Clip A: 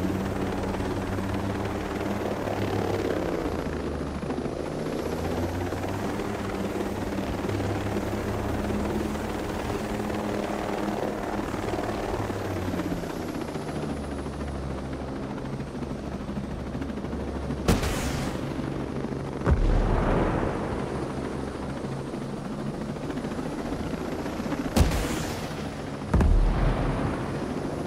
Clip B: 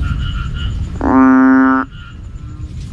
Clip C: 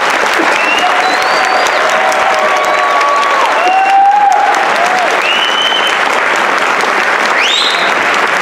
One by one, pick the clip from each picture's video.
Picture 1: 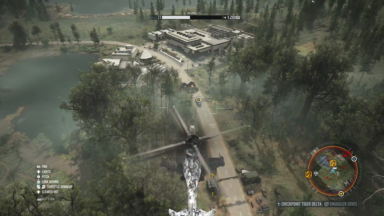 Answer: A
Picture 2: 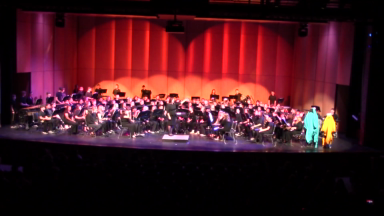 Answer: C